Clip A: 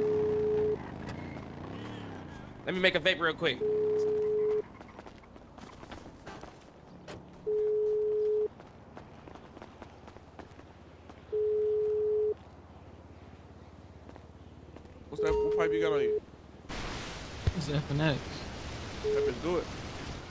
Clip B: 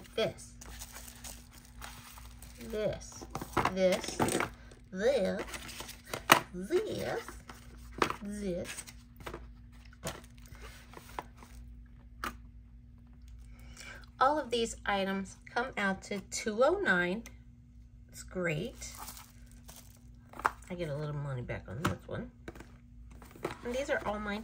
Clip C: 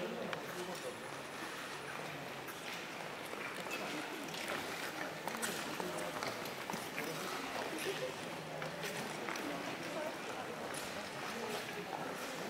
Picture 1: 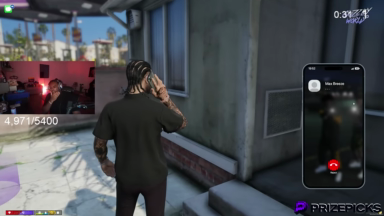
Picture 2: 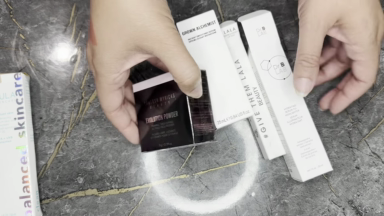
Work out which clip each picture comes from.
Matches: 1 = A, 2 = B